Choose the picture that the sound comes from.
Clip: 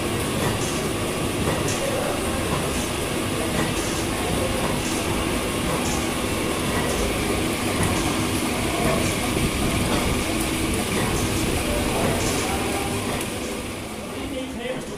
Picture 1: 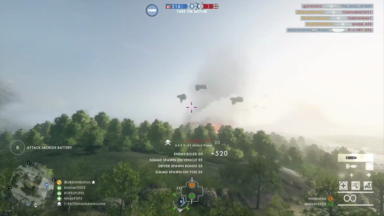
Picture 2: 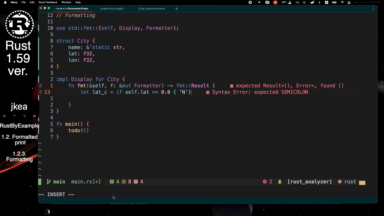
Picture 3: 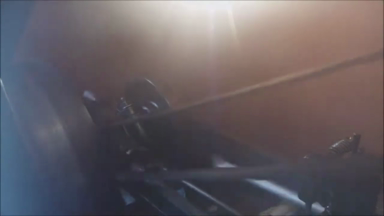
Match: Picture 3